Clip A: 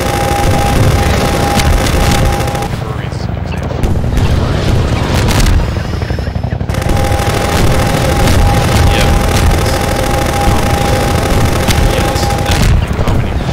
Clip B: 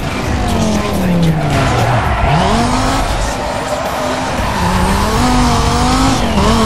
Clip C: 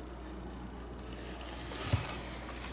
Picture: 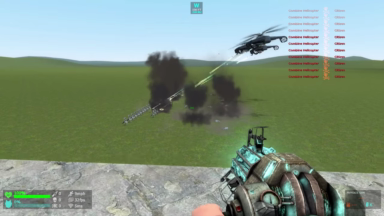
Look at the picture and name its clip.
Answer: A